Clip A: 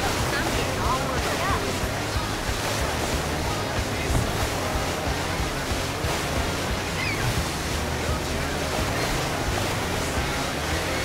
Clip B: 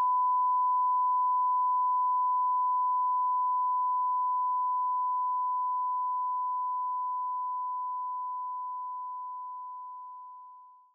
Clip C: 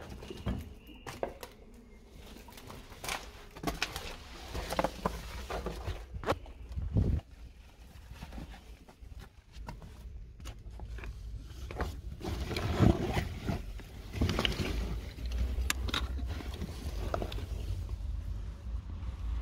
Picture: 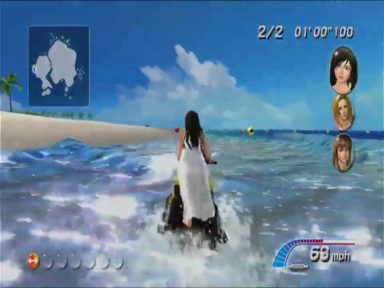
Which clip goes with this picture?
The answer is A